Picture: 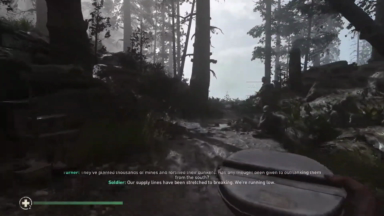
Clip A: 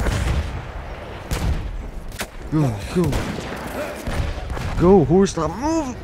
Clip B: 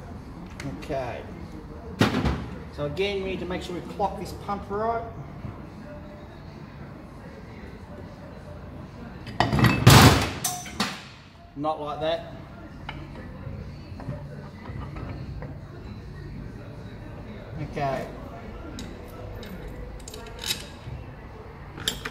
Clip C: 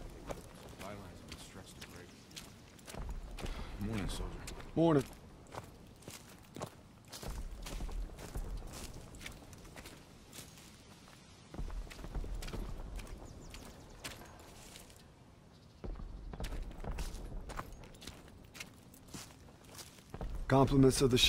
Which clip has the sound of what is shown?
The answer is C